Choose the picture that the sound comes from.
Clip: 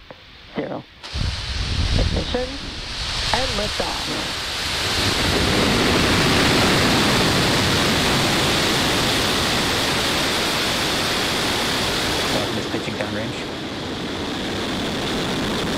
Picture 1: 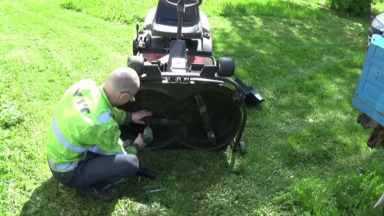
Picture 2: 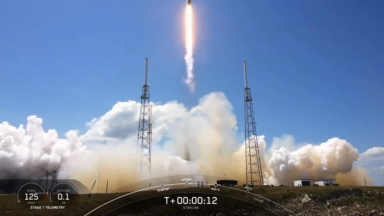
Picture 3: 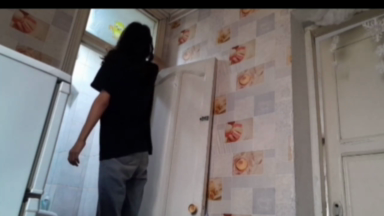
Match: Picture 2